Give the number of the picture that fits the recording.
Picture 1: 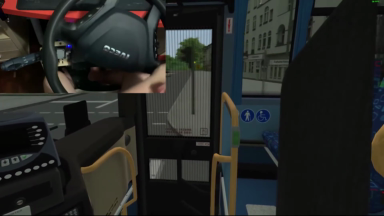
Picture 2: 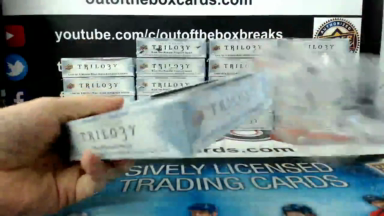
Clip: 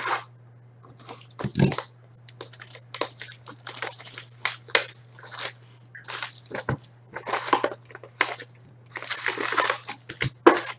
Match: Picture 2